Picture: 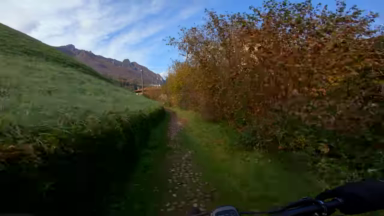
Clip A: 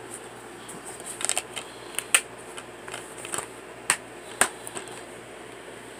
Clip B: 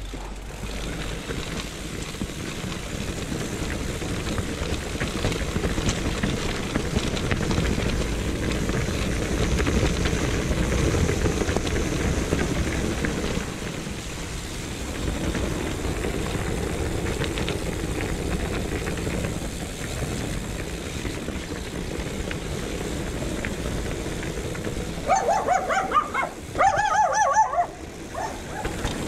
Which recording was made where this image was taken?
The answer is B